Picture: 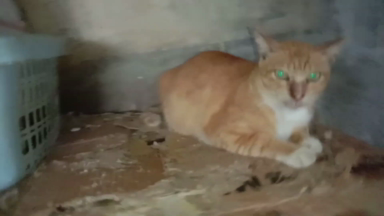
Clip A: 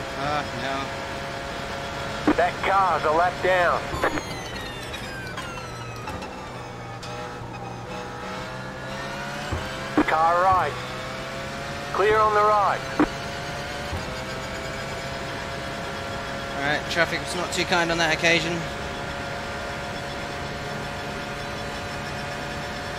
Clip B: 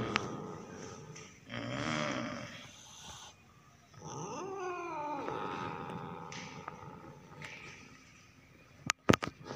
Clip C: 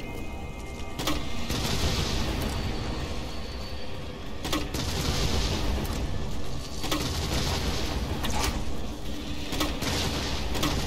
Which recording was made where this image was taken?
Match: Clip B